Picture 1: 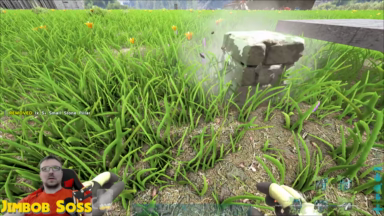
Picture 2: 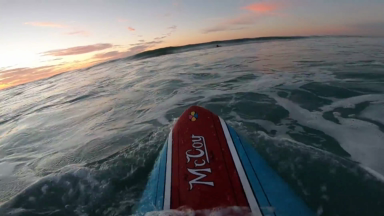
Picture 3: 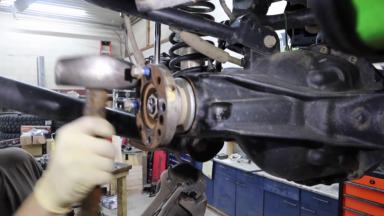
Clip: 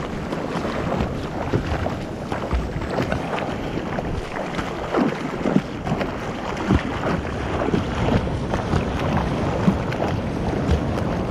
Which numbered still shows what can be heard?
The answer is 2